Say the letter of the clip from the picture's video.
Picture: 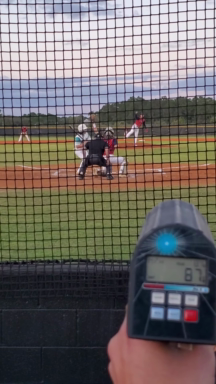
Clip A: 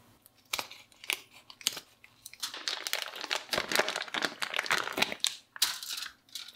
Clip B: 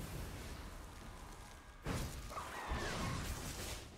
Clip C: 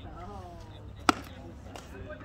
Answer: C